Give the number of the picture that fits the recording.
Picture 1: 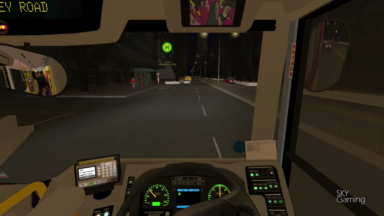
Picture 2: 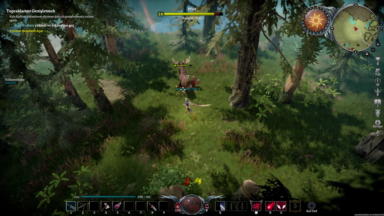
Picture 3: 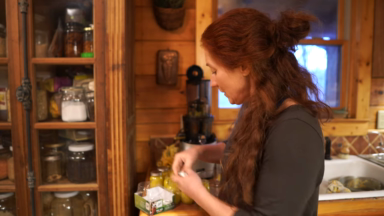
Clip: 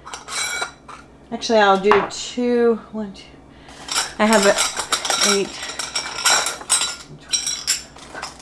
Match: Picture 3